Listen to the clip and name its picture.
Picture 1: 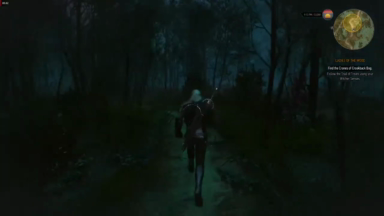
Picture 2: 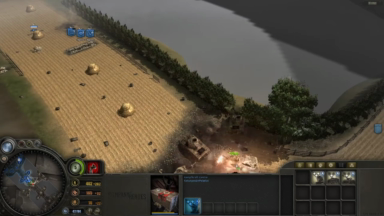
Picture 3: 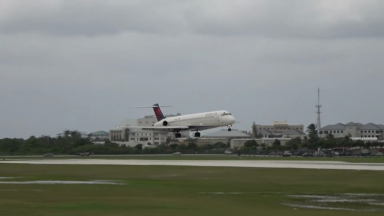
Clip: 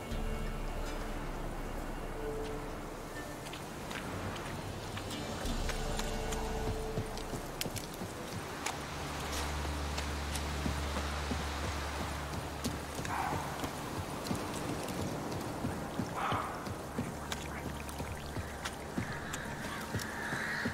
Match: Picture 1